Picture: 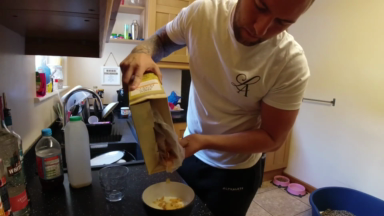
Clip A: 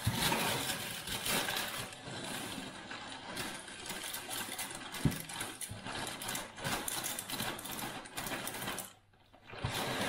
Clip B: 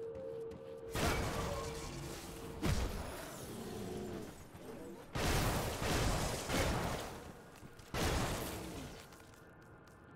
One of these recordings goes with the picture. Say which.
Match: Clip A